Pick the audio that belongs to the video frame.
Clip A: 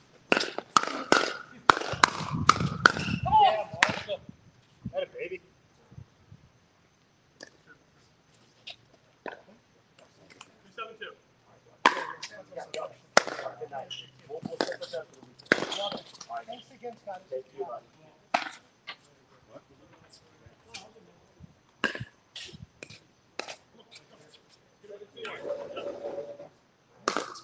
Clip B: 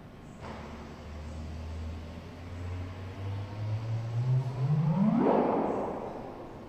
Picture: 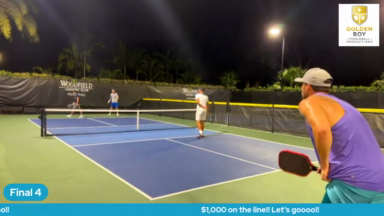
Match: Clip A